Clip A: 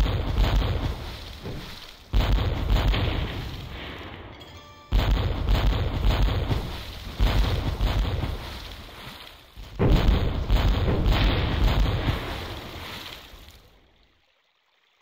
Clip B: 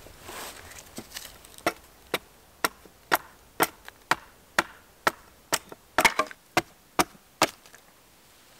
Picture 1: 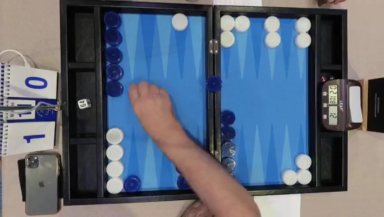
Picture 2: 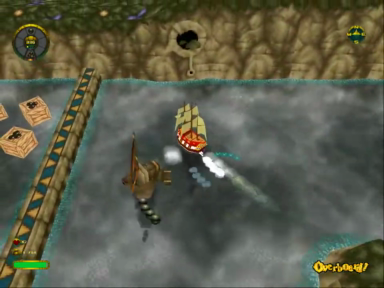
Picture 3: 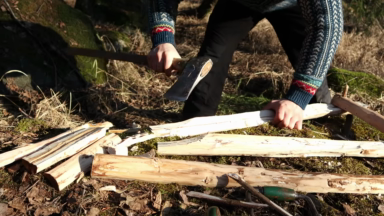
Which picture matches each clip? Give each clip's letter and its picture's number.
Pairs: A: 2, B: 3